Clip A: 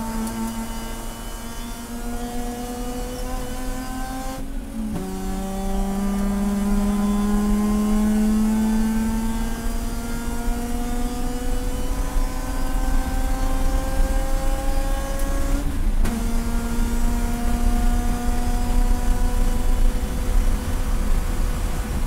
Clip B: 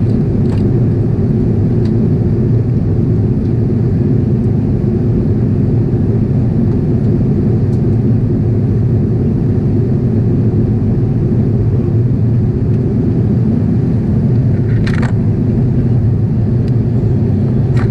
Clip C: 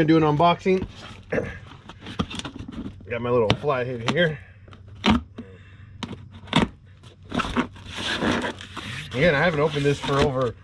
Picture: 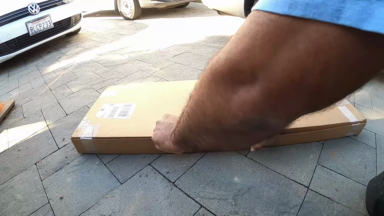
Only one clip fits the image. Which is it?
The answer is C